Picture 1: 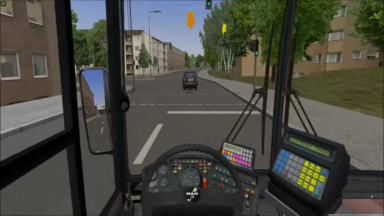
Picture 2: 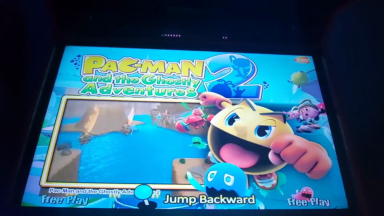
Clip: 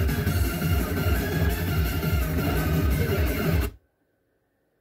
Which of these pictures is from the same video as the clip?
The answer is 2